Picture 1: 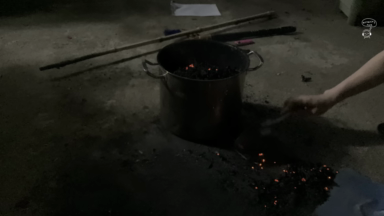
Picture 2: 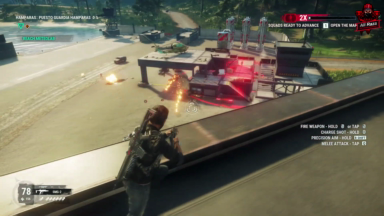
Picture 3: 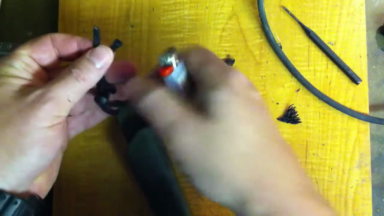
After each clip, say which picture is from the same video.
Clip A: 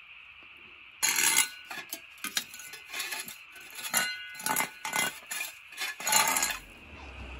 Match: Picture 1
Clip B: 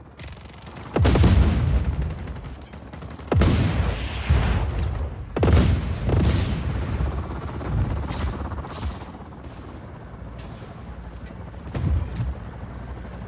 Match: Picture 2